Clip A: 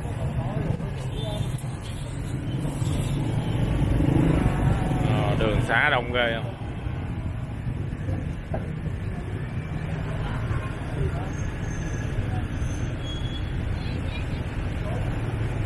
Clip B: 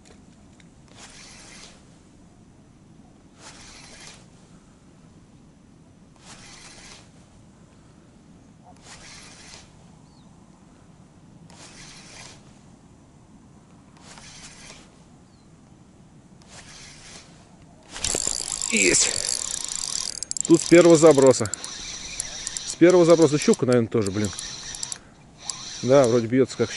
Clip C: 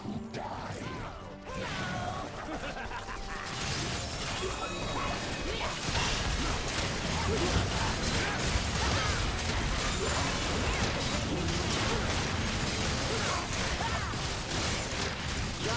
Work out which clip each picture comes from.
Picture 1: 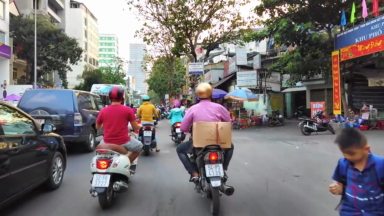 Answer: A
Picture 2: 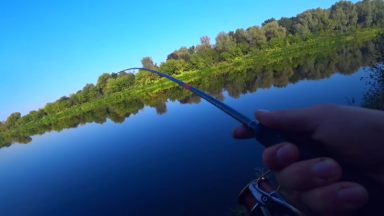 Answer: B